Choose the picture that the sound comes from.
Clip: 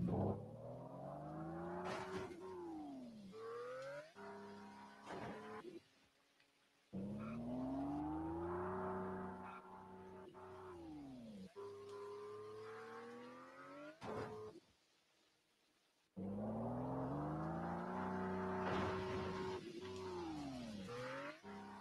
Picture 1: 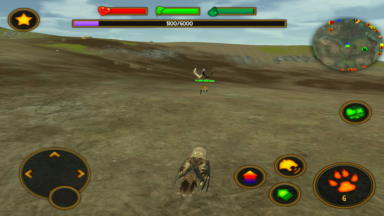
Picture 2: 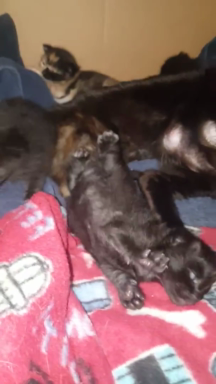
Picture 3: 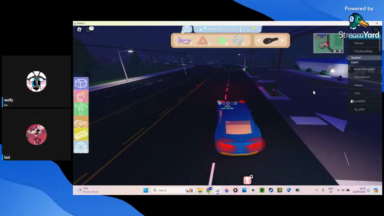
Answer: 3